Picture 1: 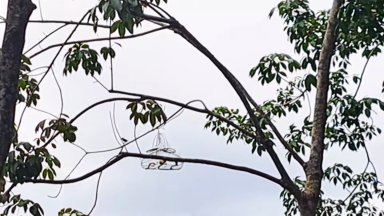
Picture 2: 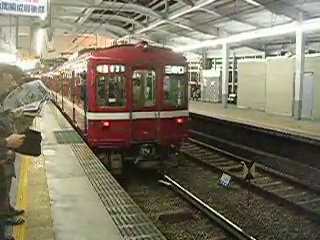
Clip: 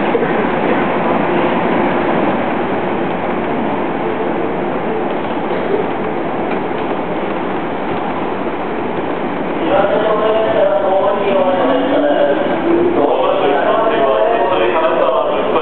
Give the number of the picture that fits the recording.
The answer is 2